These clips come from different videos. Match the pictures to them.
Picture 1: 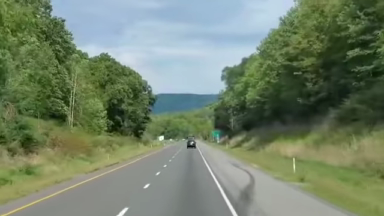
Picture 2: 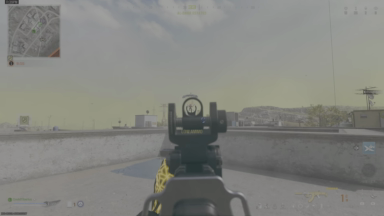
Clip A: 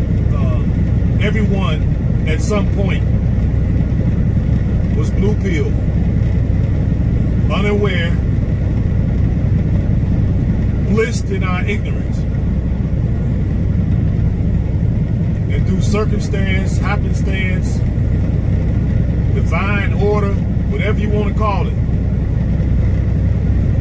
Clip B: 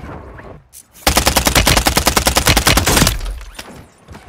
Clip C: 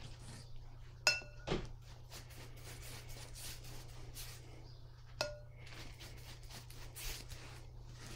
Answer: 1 A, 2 B